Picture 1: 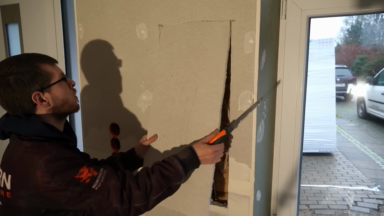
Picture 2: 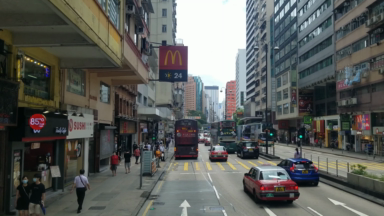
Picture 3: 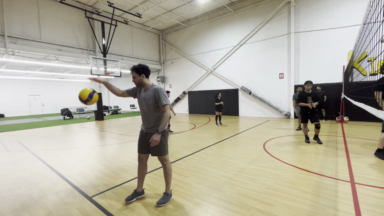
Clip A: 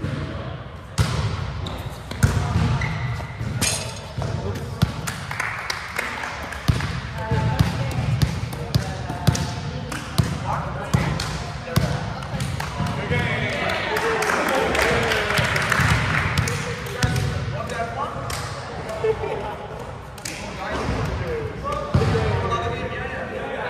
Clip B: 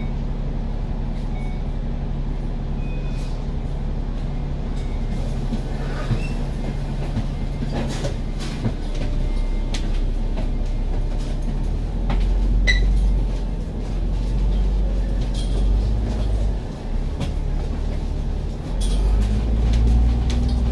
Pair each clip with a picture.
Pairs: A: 3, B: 2